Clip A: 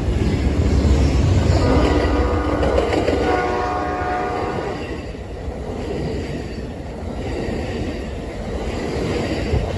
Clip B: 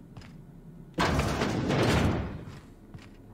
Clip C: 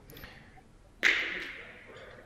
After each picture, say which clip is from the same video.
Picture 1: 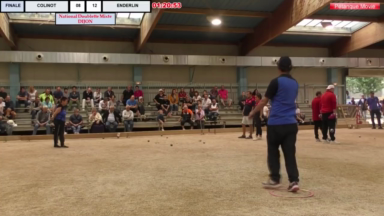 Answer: C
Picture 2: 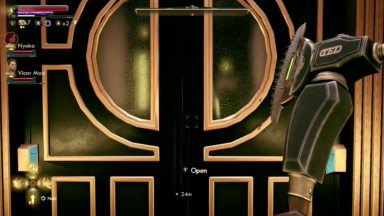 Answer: B